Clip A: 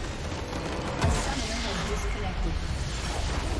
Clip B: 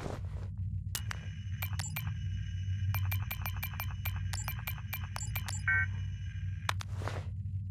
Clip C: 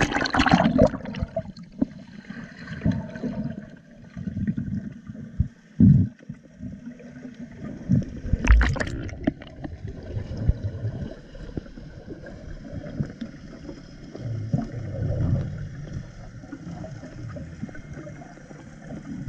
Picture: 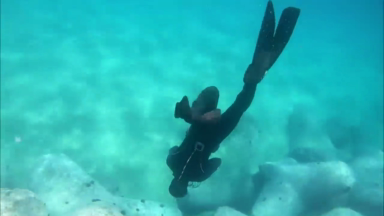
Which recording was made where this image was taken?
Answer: C